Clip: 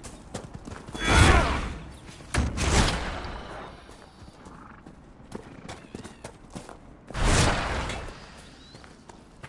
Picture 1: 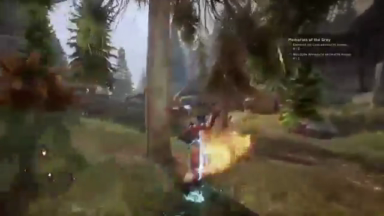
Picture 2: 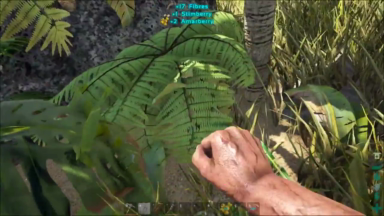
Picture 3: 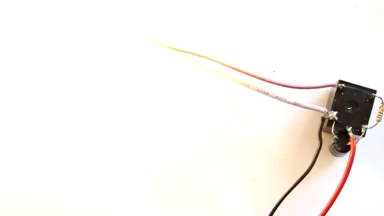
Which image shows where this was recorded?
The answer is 1